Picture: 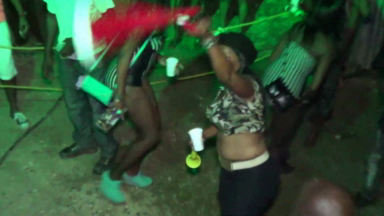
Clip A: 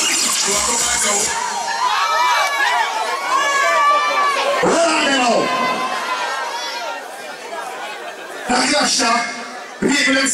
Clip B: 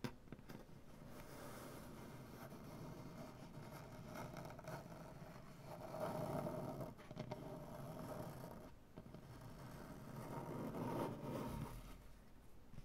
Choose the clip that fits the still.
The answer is A